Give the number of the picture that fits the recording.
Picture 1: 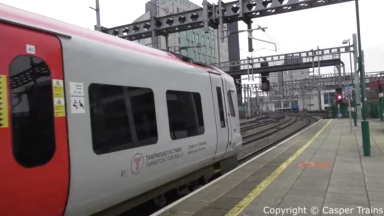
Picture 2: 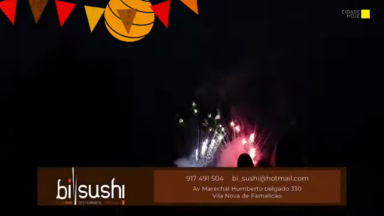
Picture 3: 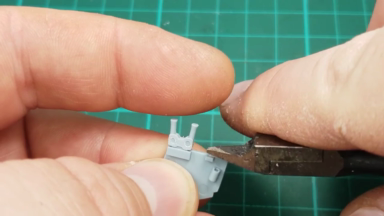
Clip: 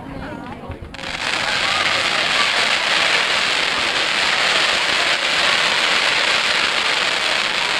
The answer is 2